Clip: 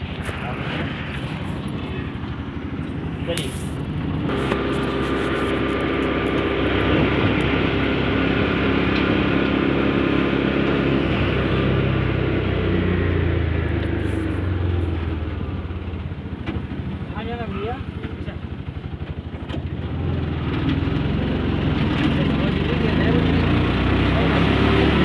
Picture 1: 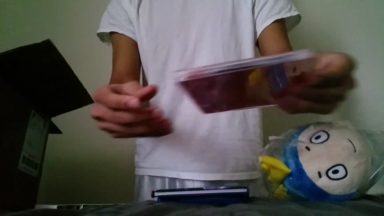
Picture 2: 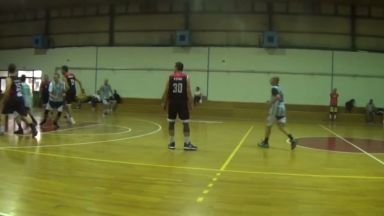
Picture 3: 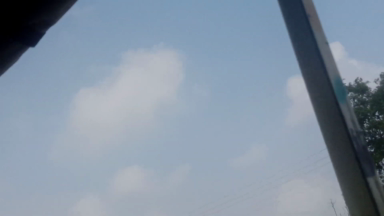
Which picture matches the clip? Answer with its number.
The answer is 3